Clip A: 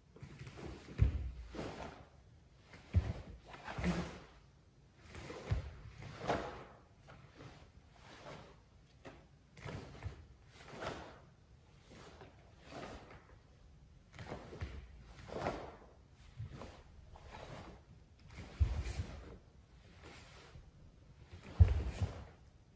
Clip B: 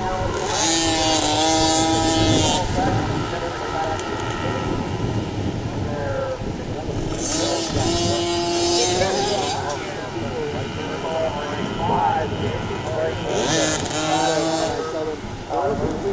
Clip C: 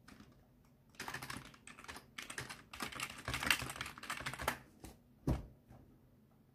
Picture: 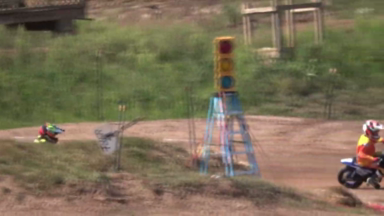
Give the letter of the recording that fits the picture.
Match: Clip B